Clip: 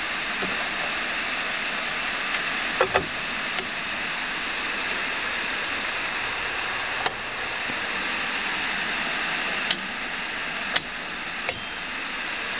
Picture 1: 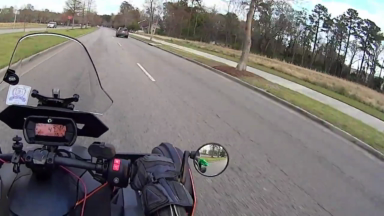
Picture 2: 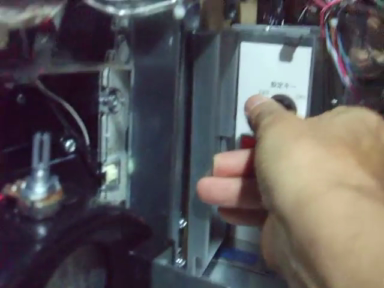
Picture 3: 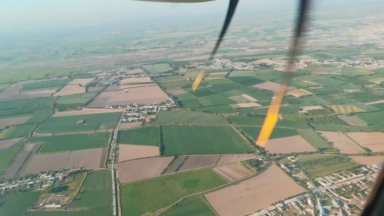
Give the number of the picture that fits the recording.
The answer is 2